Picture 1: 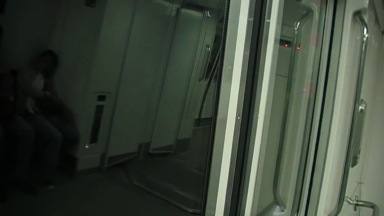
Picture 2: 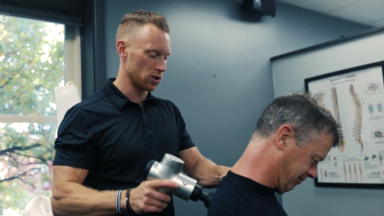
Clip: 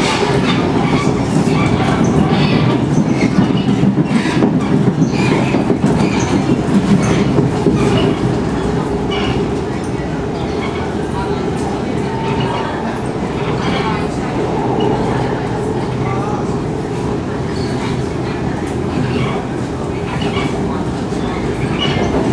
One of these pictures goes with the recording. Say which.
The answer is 1